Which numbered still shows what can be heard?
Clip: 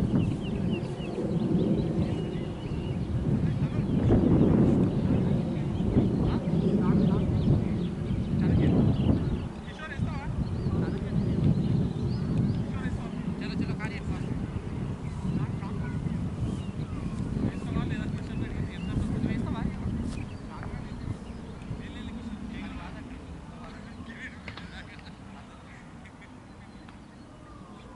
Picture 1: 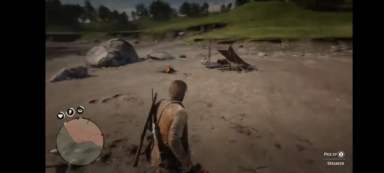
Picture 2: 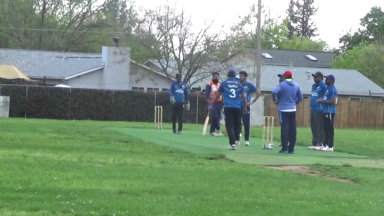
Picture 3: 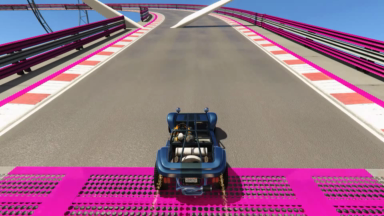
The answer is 2